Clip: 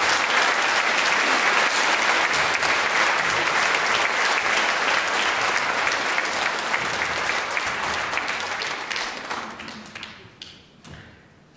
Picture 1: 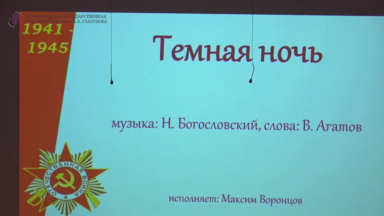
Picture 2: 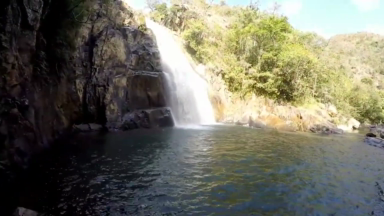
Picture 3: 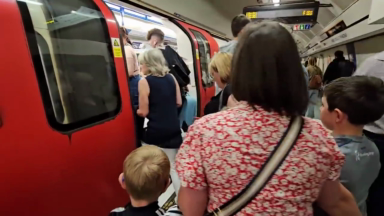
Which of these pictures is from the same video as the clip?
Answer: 1